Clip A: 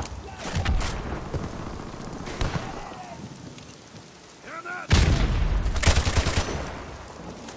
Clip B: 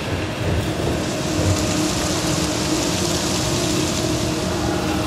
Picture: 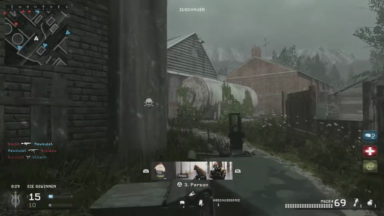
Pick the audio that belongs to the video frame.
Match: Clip A